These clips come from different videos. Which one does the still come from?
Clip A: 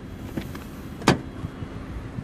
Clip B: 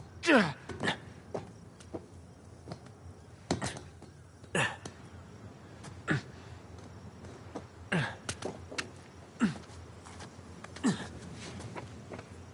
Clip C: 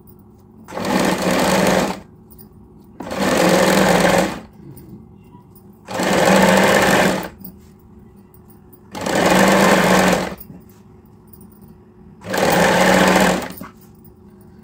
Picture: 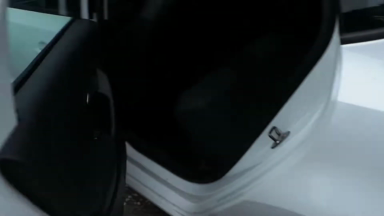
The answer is A